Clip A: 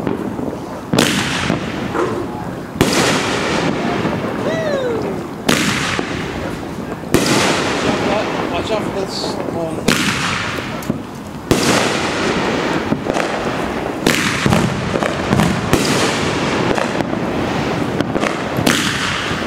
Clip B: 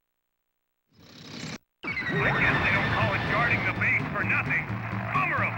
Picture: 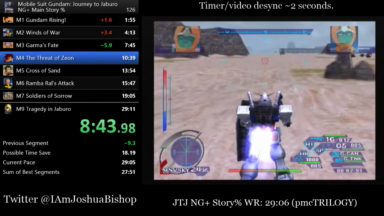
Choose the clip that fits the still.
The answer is B